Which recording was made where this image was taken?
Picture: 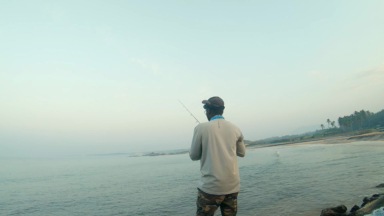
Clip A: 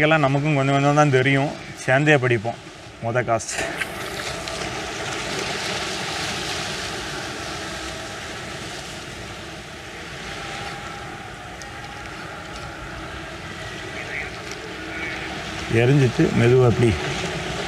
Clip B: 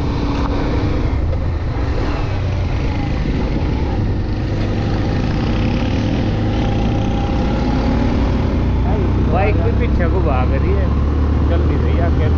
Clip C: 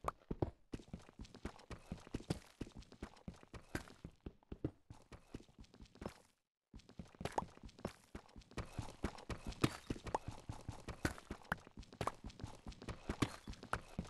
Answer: A